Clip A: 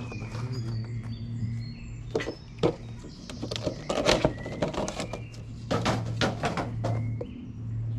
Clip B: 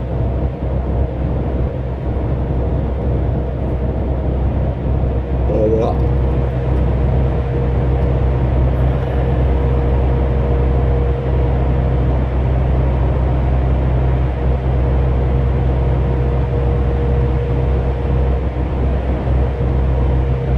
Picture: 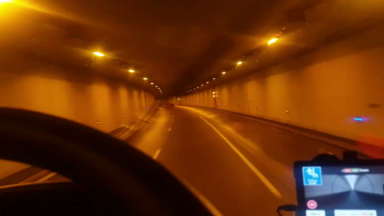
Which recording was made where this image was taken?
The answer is B